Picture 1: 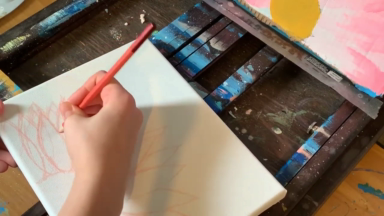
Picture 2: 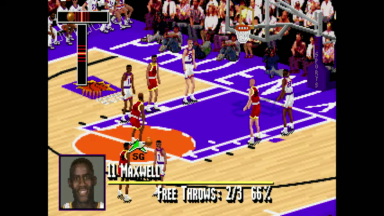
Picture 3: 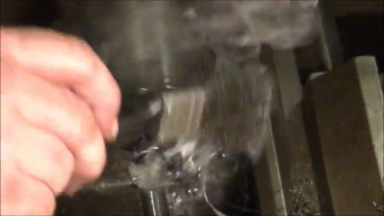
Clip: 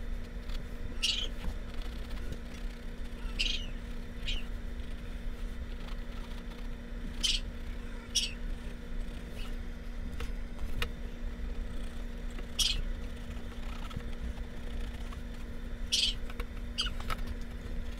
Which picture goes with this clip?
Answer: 1